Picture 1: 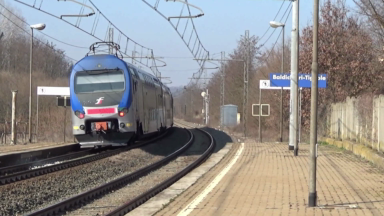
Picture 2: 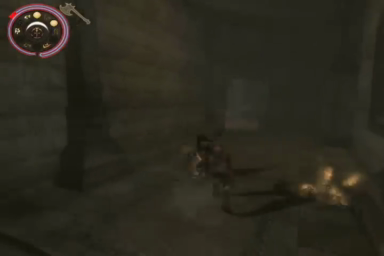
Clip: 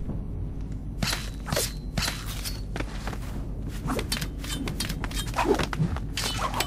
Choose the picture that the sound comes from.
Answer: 2